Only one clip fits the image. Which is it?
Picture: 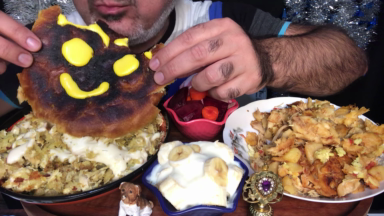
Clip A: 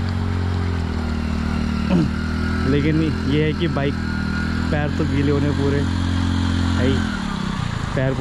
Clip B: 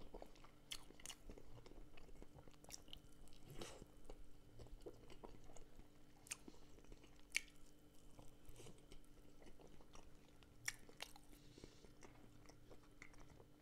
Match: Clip B